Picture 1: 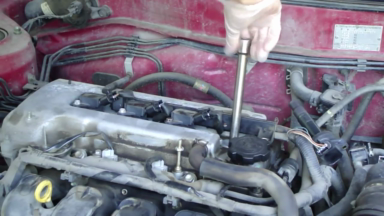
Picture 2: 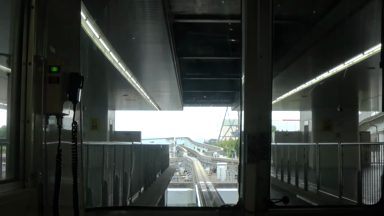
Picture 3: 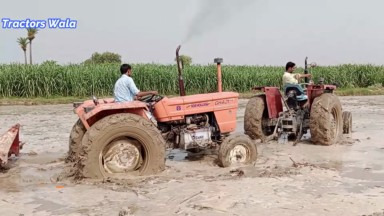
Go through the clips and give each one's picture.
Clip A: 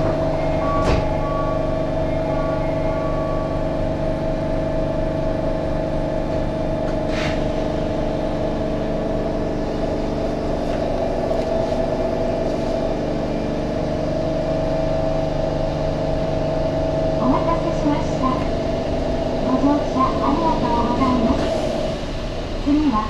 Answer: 2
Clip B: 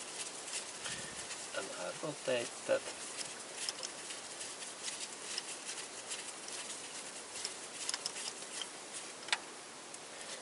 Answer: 1